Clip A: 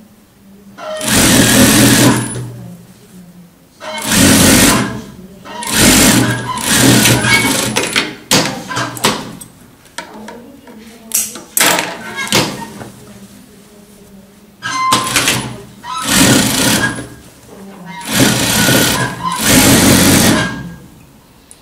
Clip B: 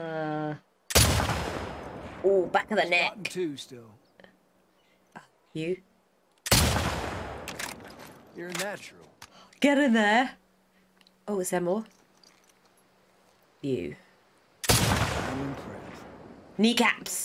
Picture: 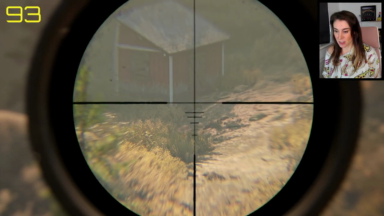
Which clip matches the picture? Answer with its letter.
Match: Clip B